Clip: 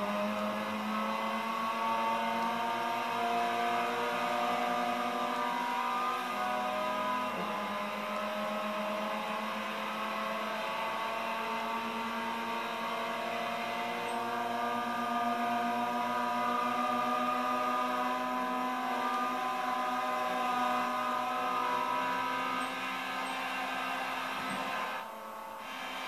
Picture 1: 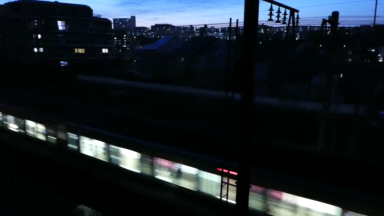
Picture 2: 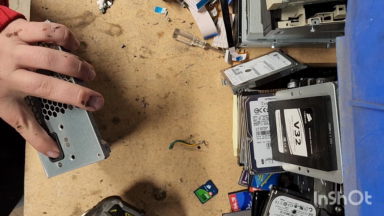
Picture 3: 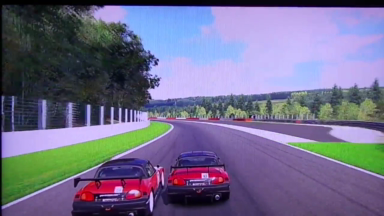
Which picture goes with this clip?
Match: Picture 3